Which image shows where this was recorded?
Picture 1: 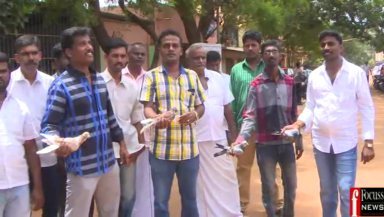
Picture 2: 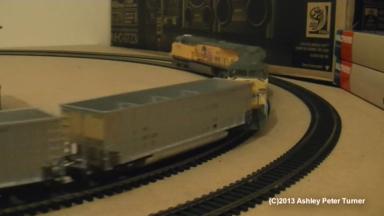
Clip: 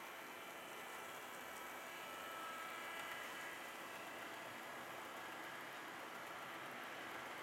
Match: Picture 2